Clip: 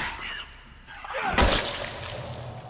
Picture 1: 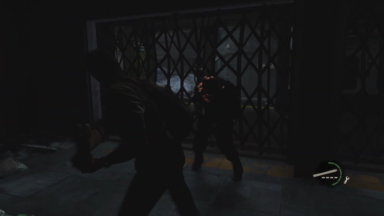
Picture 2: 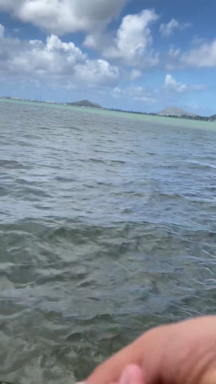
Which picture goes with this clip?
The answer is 1